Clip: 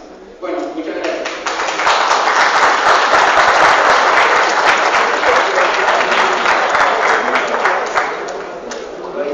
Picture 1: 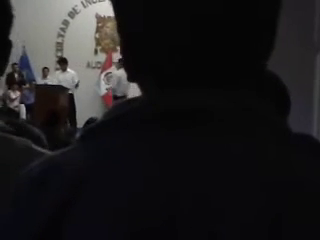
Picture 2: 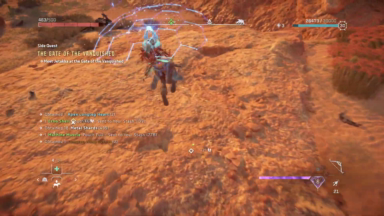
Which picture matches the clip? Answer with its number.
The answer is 1